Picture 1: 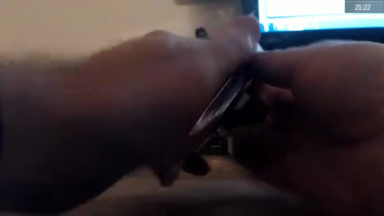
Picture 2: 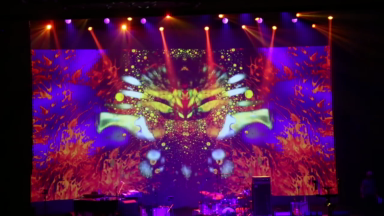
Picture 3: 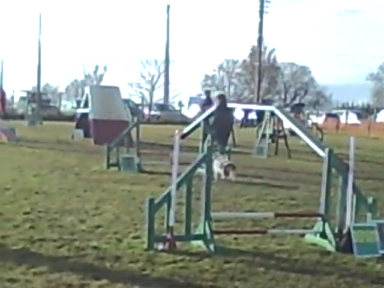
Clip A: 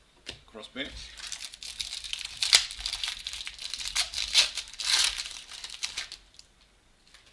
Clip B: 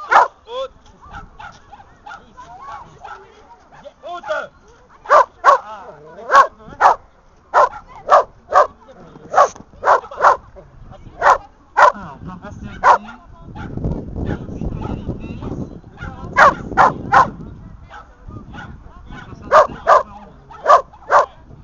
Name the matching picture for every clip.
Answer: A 1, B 3